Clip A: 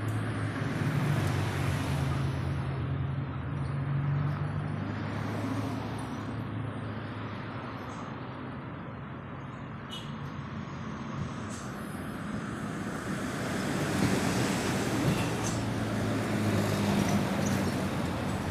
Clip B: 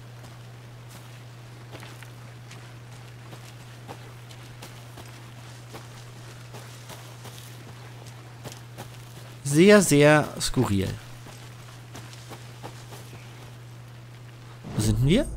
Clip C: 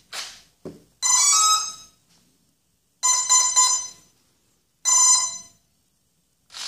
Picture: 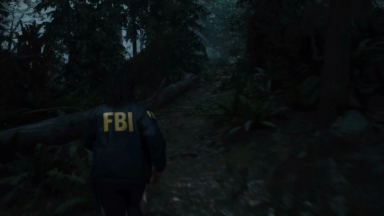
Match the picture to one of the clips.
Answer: B